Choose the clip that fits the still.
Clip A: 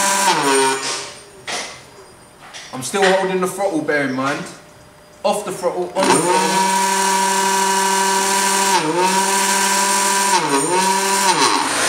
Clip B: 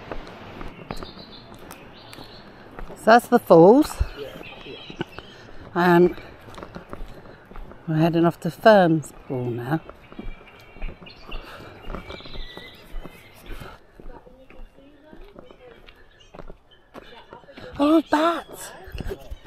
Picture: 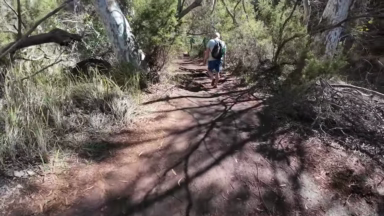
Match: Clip B